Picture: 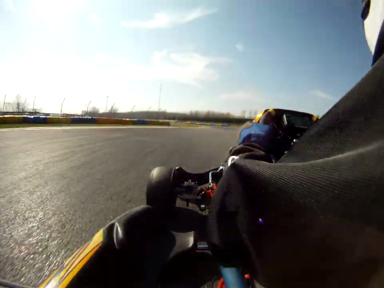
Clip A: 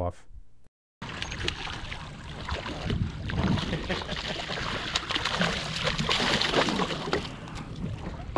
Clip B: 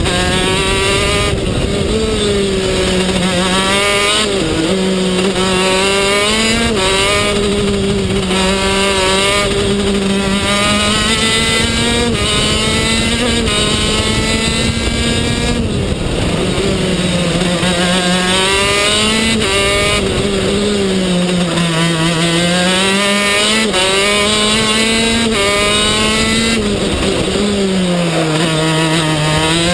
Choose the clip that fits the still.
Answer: B